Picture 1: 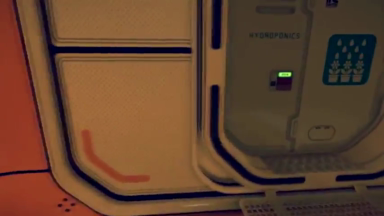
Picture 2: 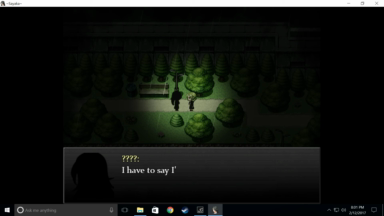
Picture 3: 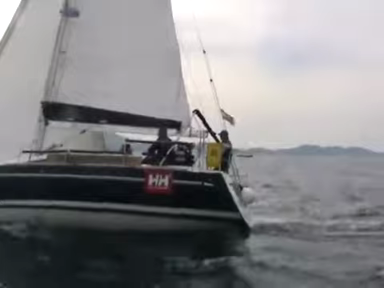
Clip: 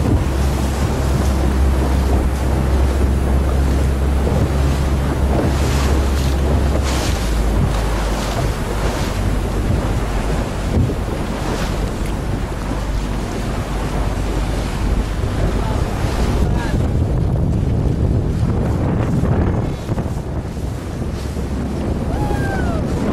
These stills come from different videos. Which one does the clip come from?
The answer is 3